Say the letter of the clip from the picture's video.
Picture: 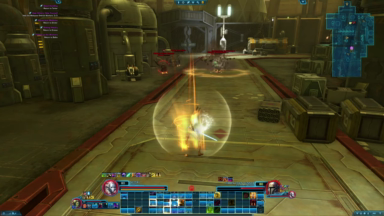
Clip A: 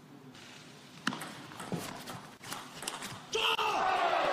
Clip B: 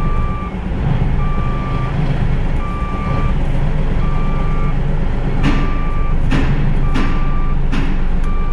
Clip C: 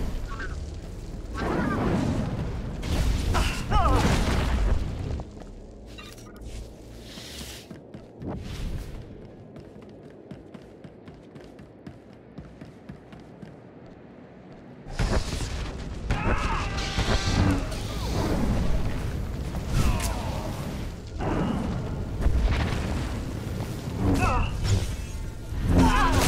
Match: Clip C